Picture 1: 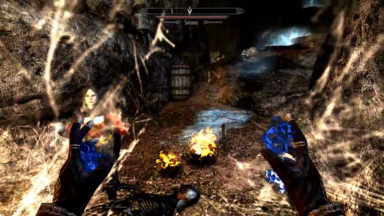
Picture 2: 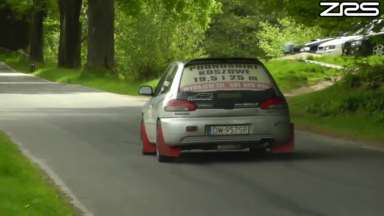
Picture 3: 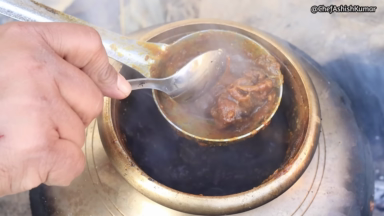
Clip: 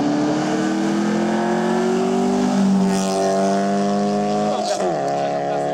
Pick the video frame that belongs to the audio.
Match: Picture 2